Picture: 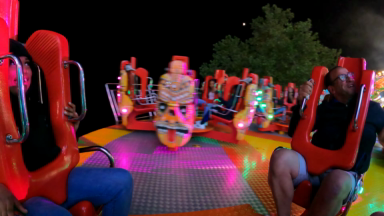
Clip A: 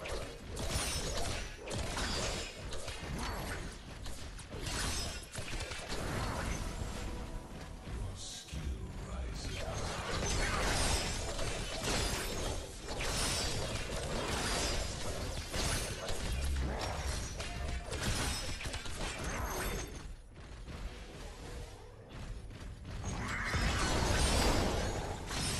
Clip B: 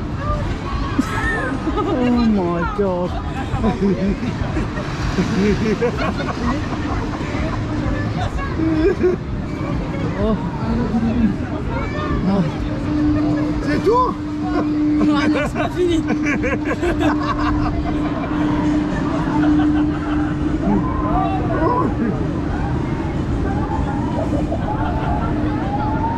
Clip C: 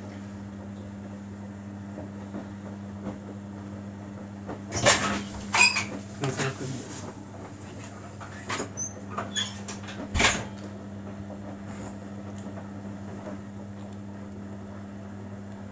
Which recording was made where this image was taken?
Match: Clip B